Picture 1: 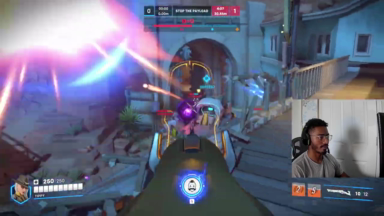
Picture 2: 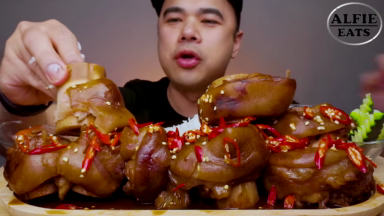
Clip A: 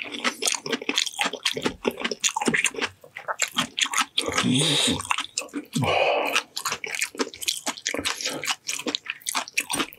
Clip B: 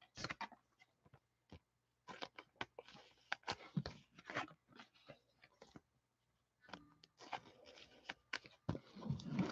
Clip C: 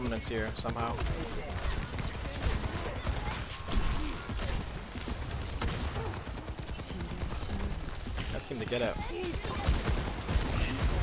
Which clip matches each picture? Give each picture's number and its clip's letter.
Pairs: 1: C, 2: A